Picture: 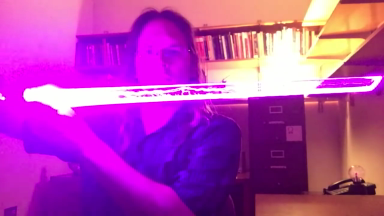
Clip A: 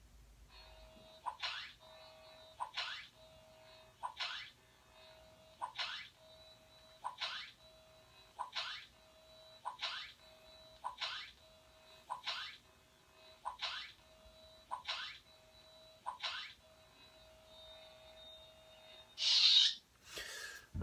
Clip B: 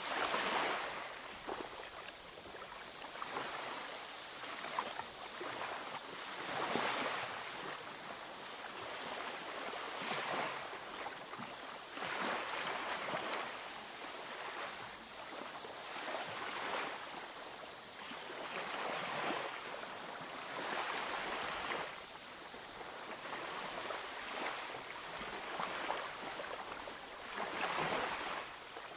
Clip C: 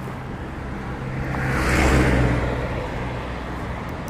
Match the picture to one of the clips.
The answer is A